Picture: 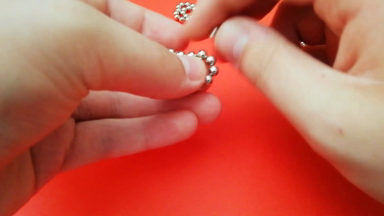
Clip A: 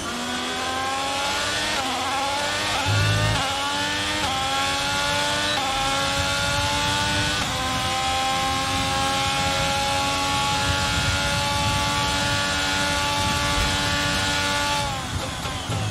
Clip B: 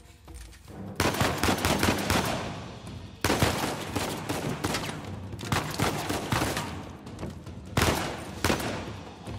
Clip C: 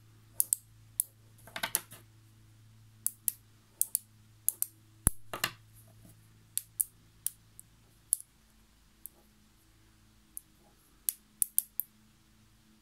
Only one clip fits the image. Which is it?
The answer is C